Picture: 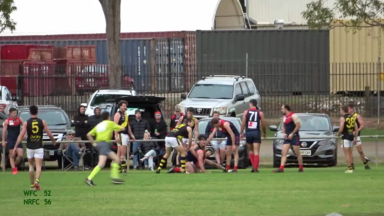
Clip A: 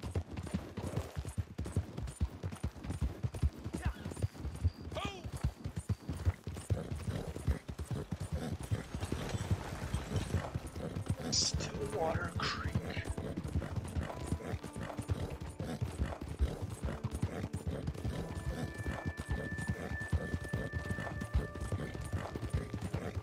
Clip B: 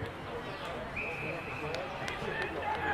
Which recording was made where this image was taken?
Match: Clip B